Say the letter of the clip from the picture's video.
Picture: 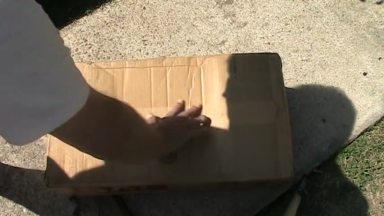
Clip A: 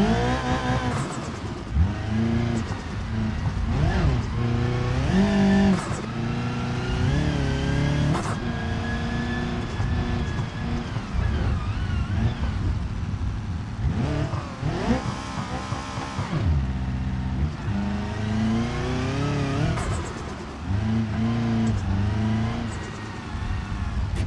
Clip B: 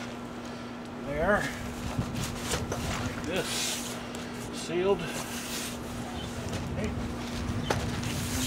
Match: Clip B